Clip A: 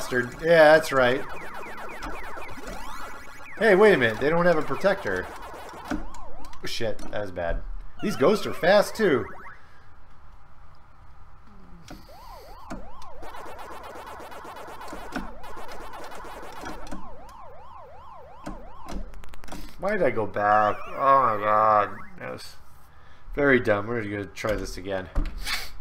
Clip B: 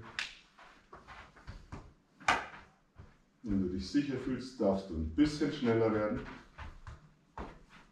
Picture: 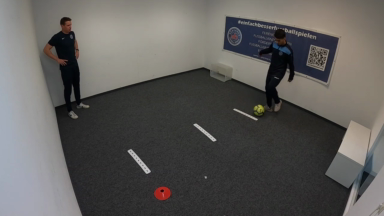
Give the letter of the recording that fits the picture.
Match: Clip B